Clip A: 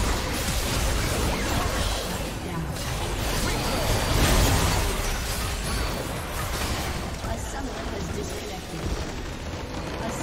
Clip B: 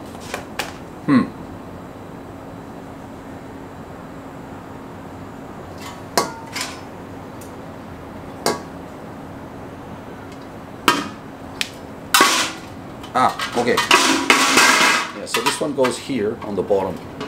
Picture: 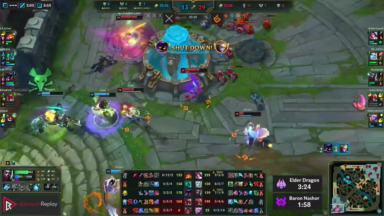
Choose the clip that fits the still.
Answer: A